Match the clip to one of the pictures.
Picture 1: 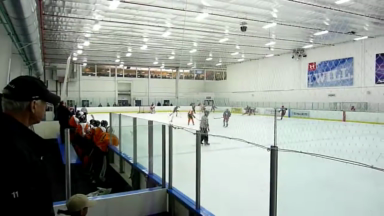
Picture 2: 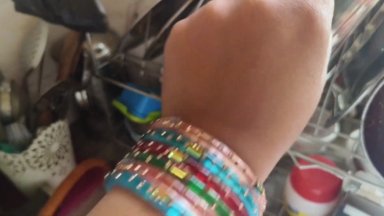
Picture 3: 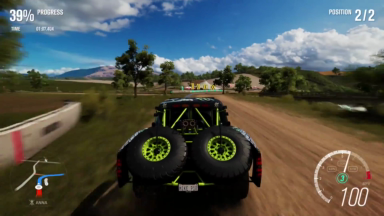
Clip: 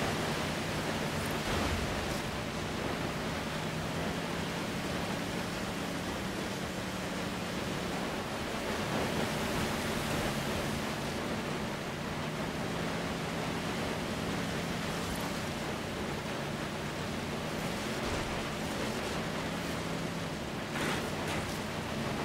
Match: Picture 3